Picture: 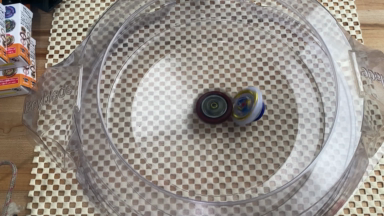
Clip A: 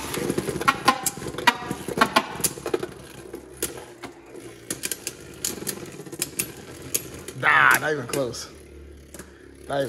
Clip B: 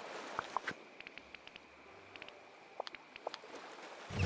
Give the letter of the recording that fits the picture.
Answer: A